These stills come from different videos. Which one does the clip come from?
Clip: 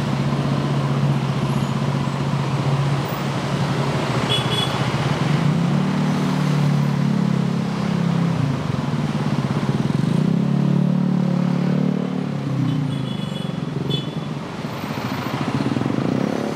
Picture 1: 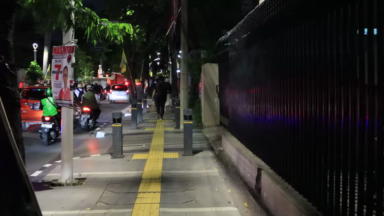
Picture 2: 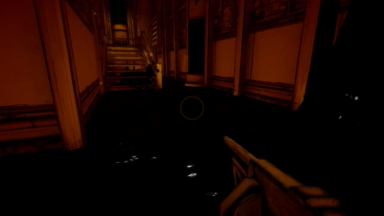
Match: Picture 1